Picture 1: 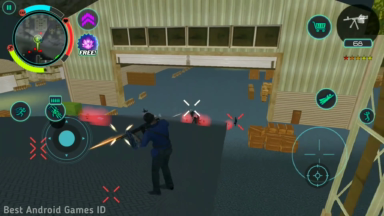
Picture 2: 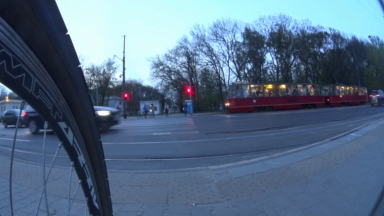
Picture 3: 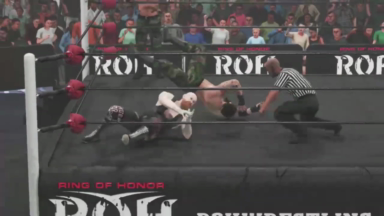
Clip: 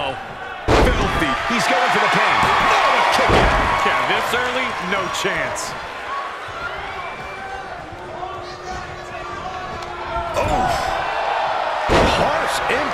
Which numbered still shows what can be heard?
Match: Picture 3